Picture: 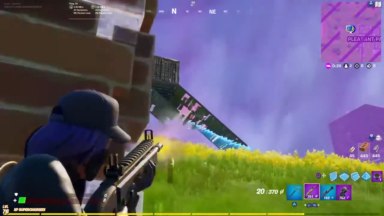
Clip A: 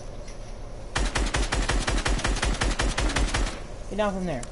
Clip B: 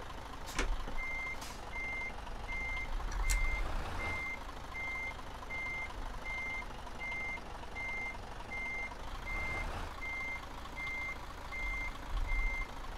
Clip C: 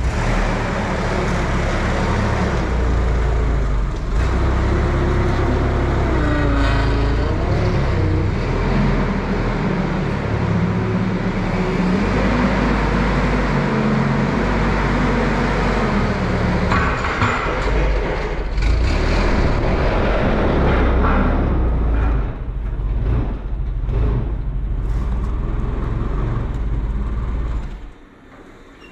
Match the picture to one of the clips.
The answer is A